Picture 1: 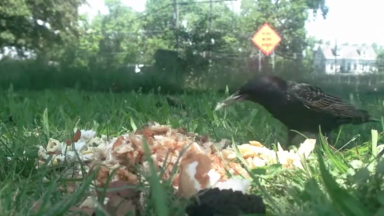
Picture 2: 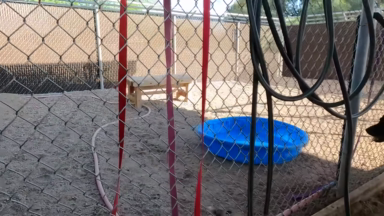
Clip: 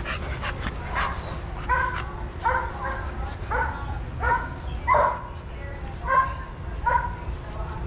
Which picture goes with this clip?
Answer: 2